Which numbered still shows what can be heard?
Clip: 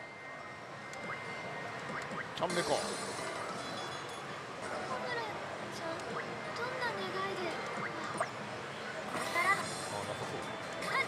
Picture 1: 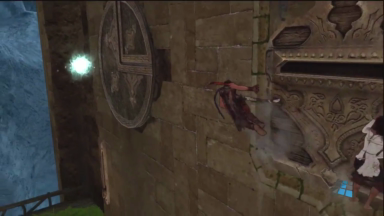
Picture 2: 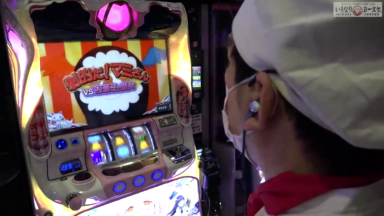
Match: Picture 2